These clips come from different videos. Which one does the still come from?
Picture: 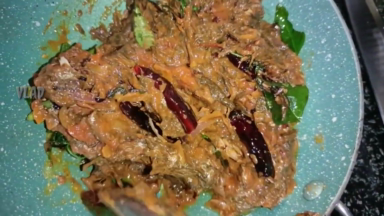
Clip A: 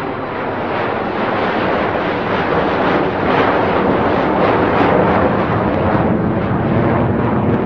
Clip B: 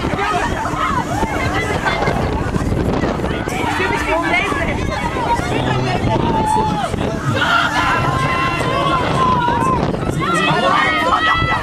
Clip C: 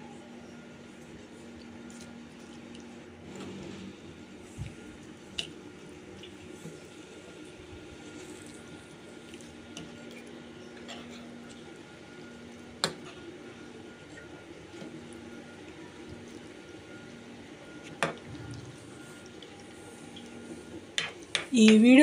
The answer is C